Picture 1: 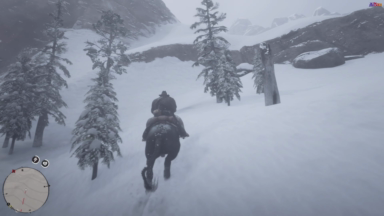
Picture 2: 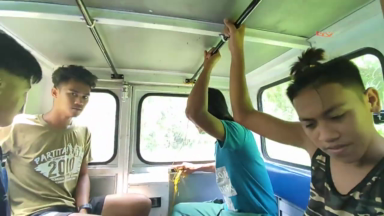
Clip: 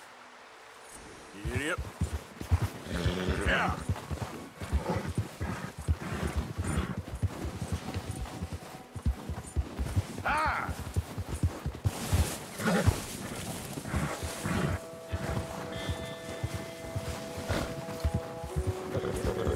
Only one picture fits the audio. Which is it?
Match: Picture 1